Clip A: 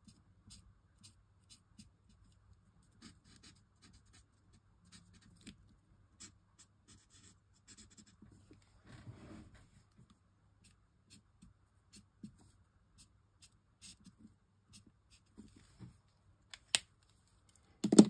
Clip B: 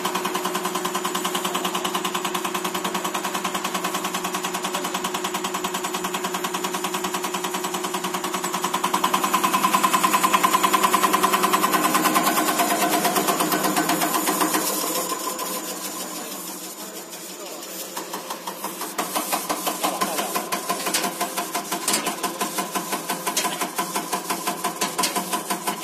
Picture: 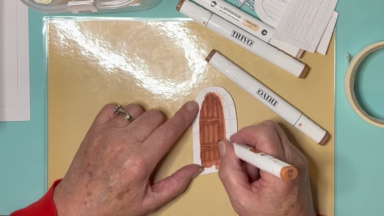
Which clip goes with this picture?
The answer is A